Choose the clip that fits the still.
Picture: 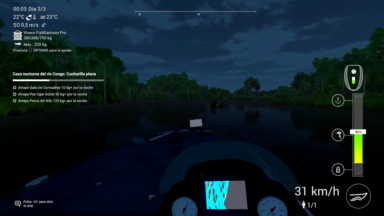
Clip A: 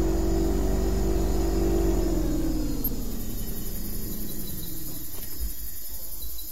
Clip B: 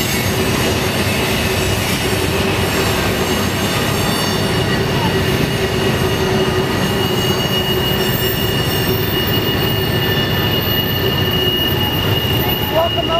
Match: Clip A